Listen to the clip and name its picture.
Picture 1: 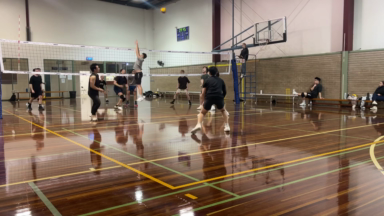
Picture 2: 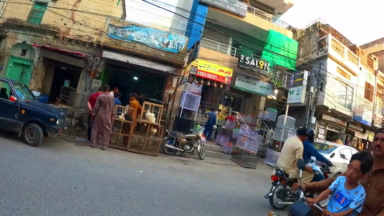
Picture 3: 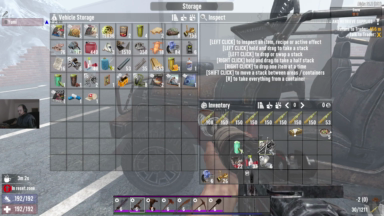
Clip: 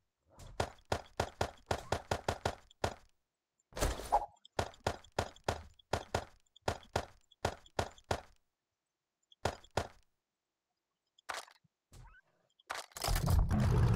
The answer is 3